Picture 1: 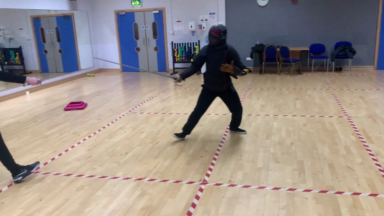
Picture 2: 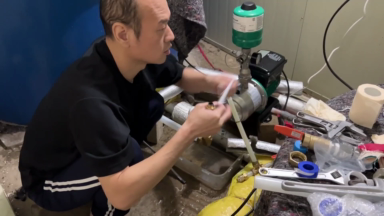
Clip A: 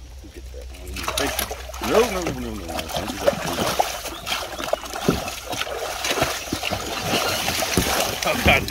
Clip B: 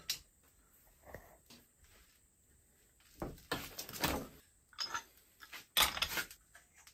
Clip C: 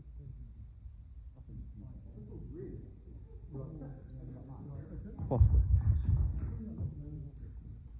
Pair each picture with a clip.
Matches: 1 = C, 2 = B